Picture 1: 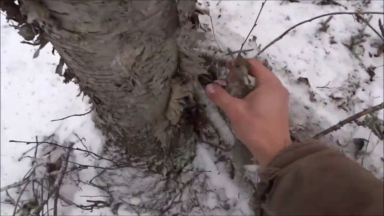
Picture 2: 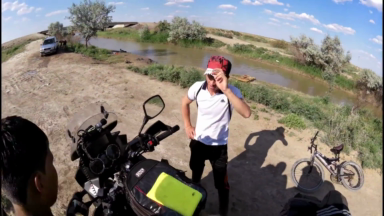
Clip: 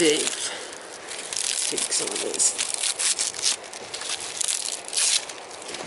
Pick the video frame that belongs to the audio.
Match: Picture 1